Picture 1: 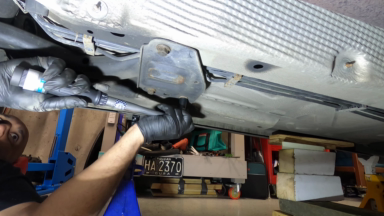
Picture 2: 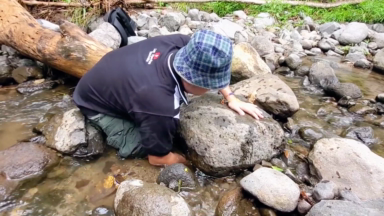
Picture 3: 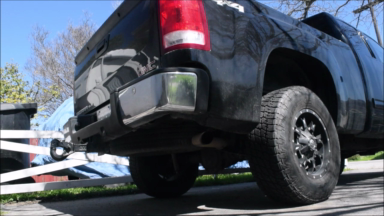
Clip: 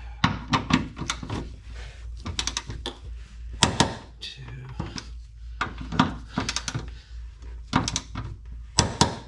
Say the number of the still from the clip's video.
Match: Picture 1